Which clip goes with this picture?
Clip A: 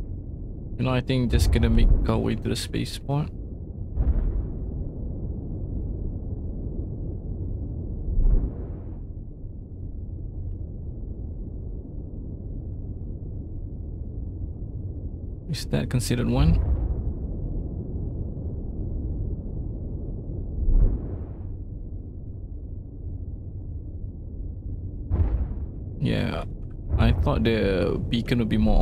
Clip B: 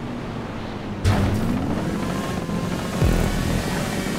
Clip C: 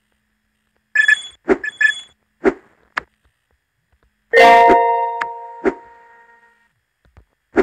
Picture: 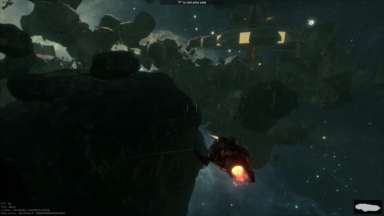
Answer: A